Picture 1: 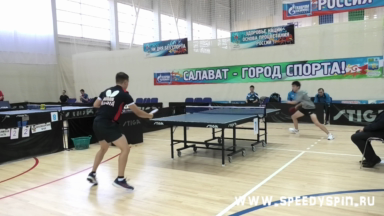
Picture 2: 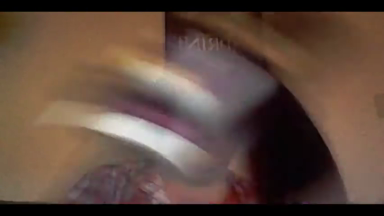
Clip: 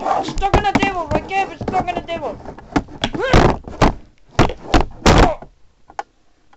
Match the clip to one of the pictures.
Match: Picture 2